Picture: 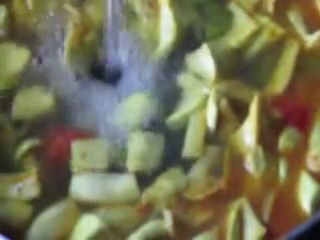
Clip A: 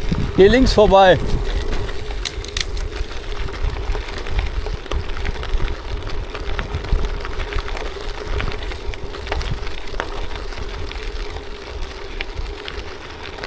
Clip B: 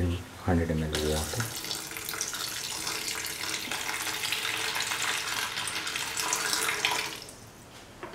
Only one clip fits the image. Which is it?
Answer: B